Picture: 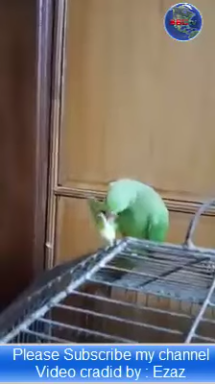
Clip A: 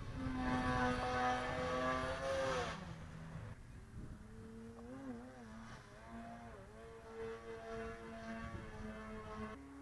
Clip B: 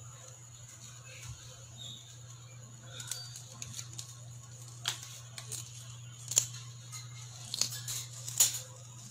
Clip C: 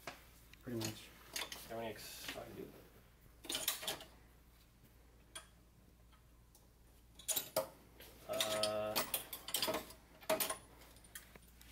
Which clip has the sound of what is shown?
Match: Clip B